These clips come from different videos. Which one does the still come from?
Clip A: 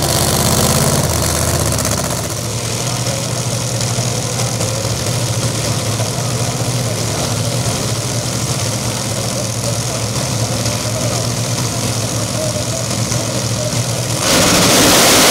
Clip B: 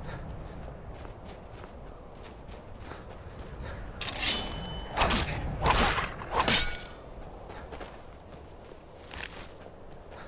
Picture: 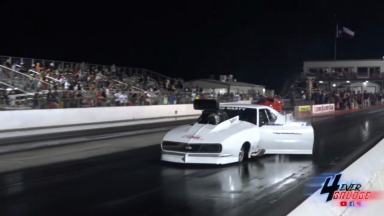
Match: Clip A